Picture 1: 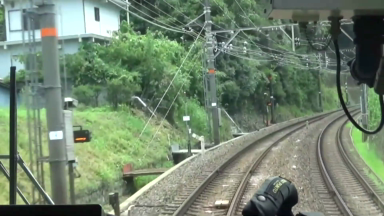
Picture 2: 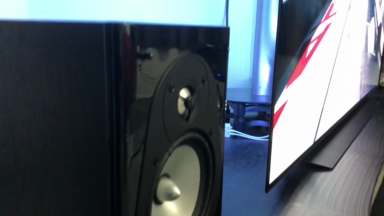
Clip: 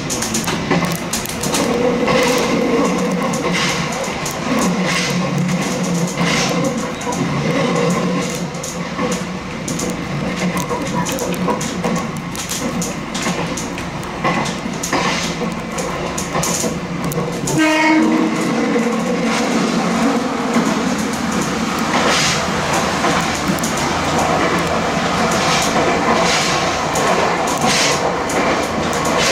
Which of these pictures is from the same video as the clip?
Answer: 1